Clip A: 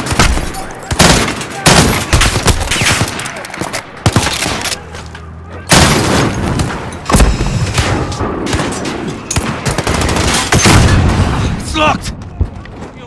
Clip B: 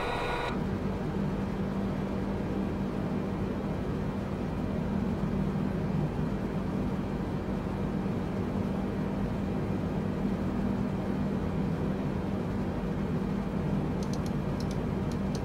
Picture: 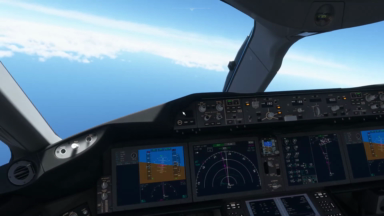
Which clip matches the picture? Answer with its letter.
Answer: B